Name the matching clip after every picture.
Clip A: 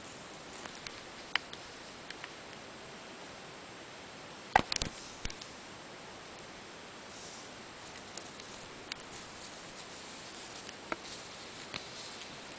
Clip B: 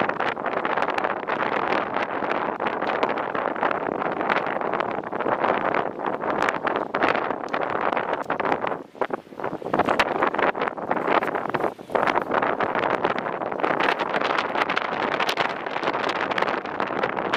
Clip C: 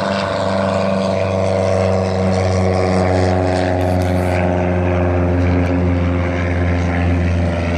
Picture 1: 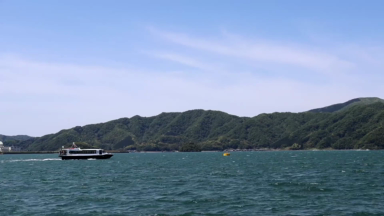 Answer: B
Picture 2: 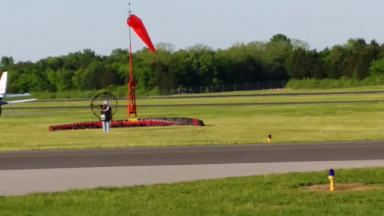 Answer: C